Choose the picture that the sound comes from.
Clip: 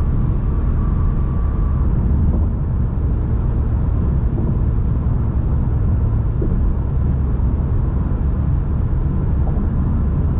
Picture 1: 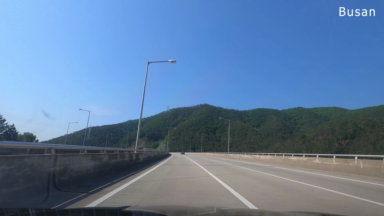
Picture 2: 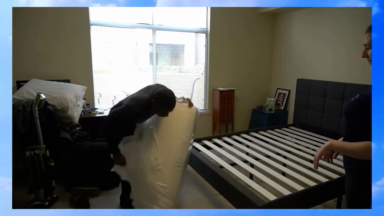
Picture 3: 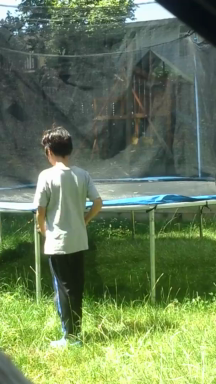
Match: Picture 1